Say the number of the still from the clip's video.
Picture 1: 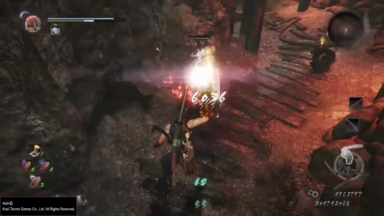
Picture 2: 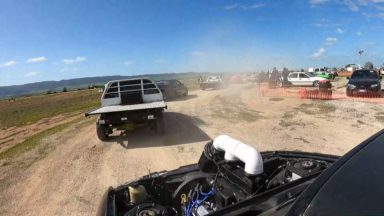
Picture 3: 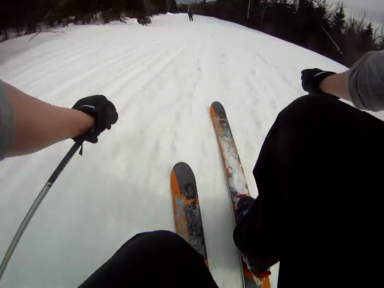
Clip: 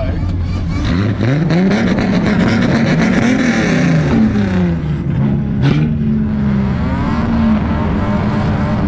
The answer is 2